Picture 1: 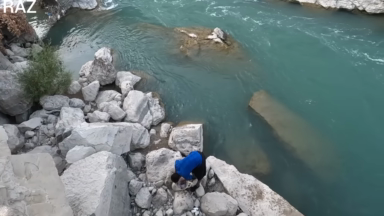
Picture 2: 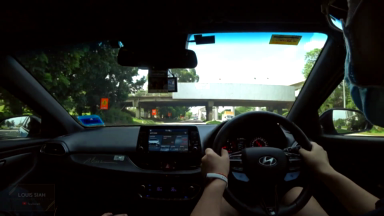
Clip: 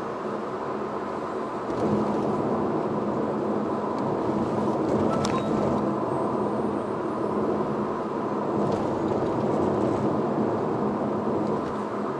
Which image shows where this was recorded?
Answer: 2